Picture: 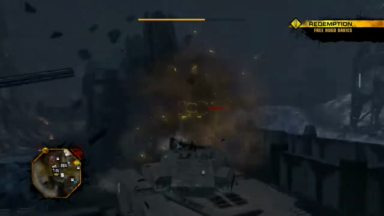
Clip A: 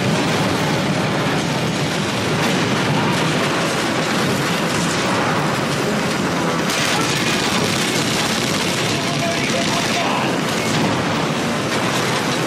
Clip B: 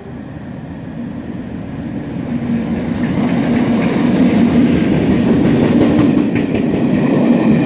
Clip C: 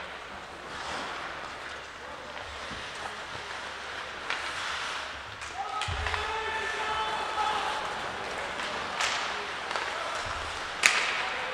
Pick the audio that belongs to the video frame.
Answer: A